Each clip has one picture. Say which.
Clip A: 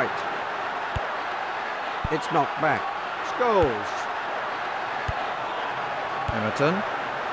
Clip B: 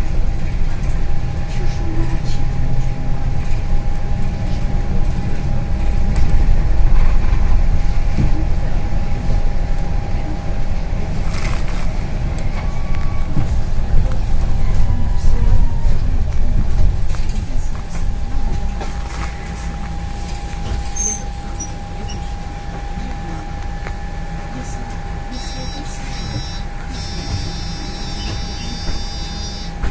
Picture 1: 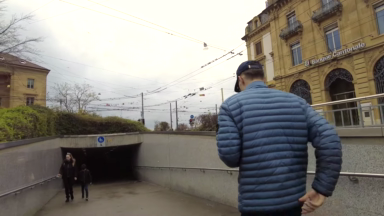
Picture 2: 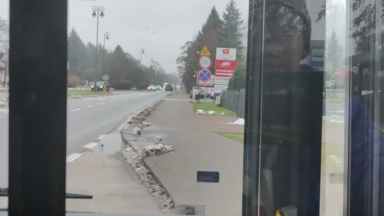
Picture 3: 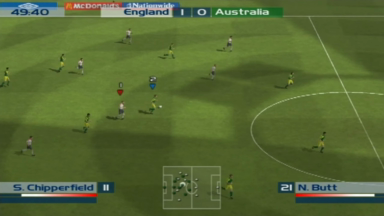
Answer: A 3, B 2